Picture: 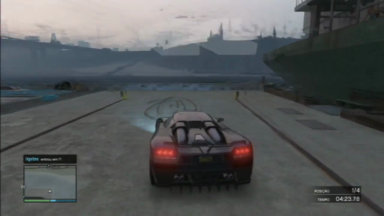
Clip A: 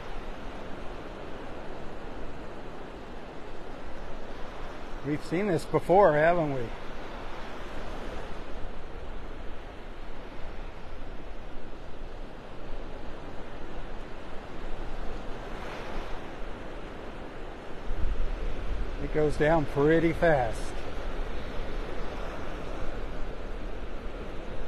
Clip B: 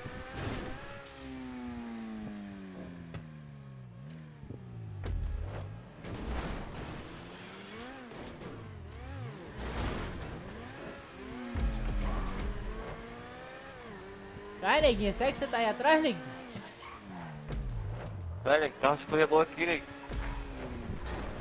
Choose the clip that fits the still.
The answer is B